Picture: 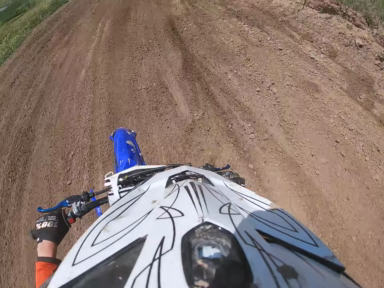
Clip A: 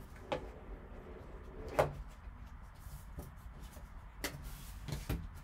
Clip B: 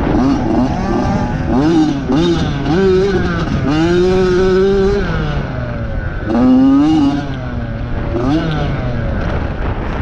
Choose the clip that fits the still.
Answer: B